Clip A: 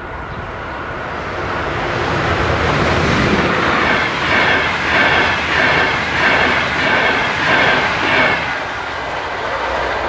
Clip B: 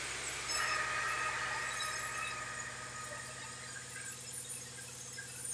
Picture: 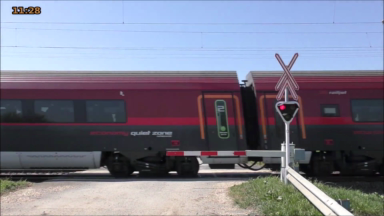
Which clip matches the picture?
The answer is A